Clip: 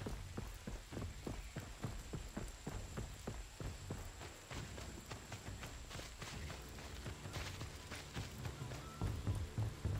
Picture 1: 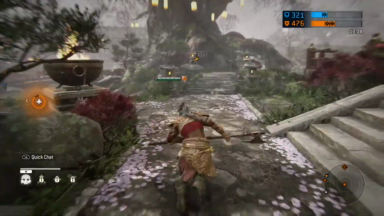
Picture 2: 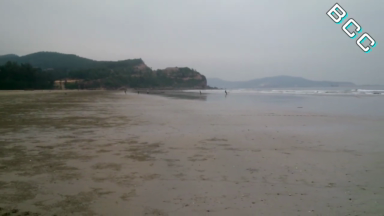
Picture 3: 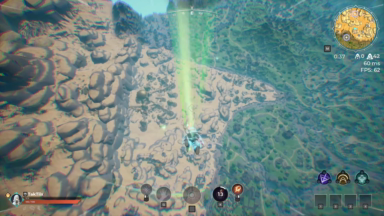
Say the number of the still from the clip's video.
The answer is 1